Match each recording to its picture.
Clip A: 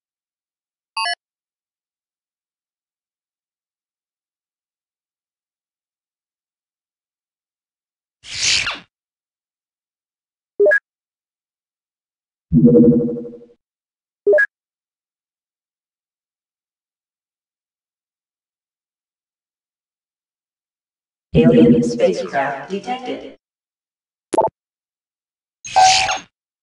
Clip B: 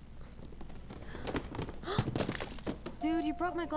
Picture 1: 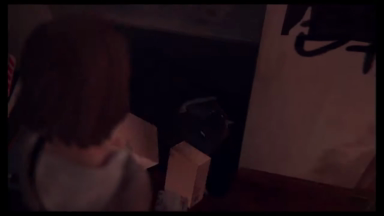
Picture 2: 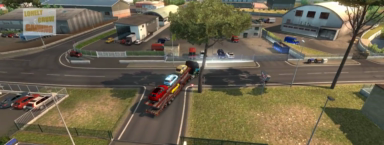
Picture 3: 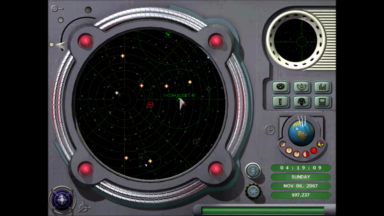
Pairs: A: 3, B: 1